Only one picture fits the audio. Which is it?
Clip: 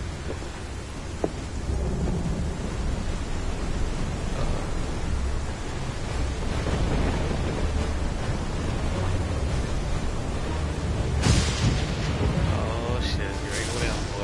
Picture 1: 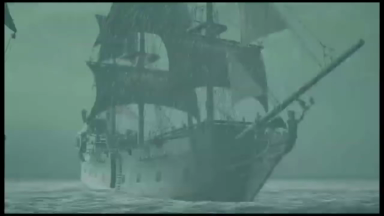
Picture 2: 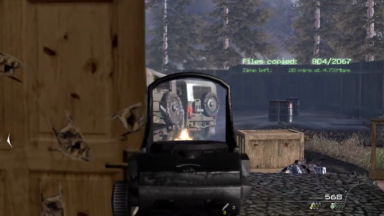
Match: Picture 1